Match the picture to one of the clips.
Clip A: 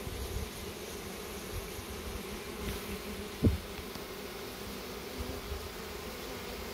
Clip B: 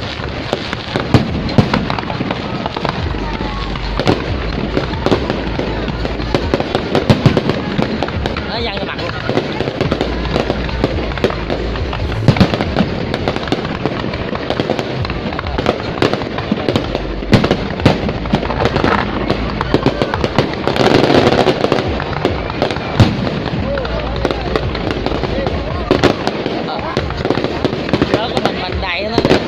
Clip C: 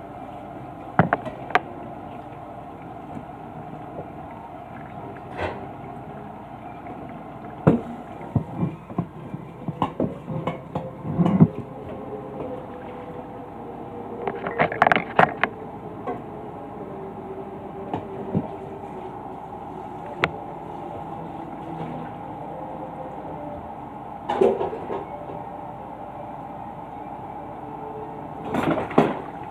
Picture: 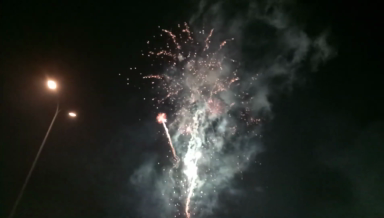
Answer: B